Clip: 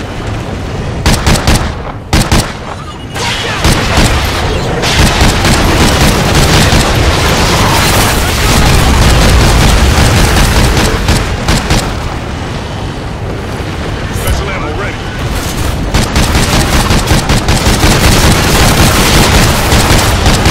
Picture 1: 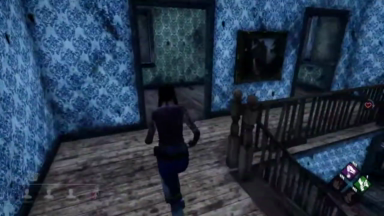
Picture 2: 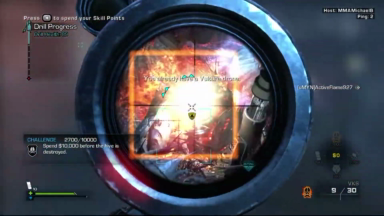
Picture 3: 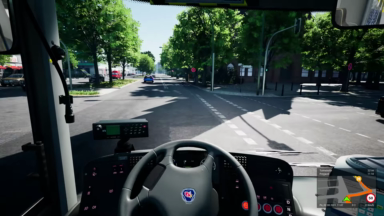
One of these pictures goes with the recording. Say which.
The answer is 2